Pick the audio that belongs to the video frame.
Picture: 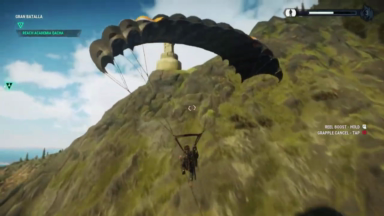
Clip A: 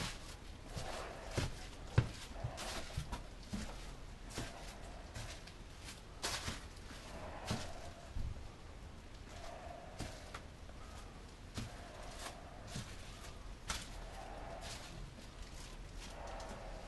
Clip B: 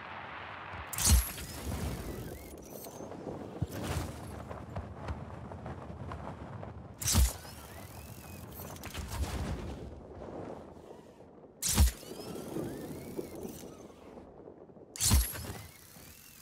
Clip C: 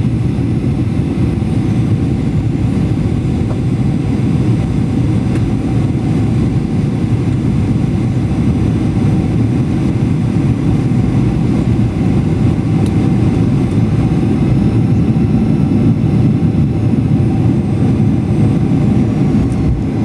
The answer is B